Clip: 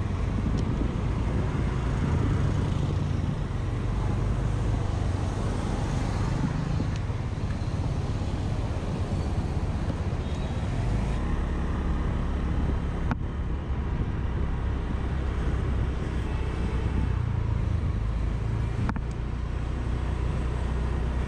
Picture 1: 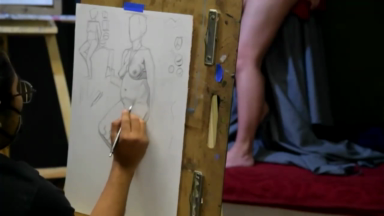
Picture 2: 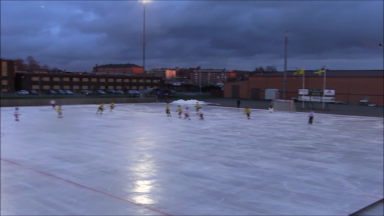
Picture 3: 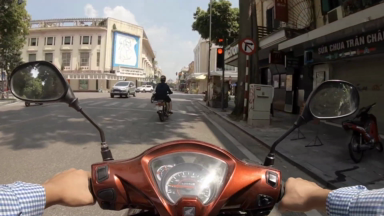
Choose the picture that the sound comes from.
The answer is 3